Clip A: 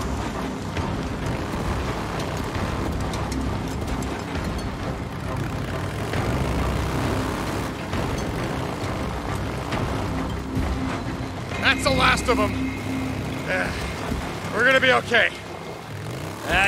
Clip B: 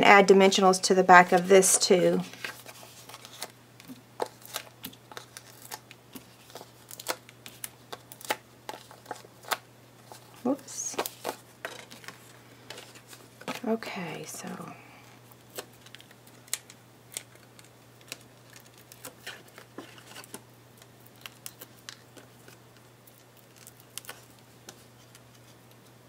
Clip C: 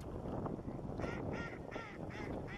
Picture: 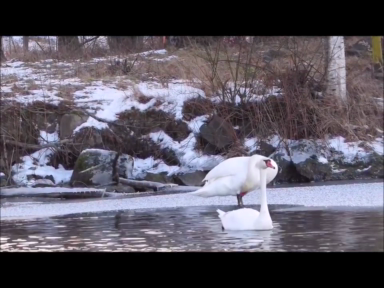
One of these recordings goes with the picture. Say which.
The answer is C